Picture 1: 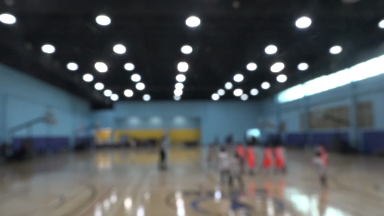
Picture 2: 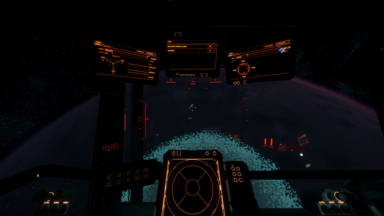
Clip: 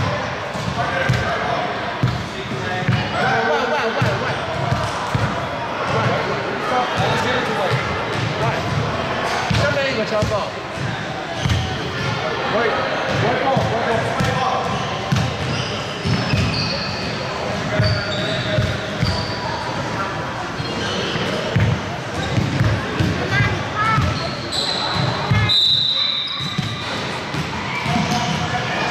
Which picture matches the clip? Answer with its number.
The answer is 1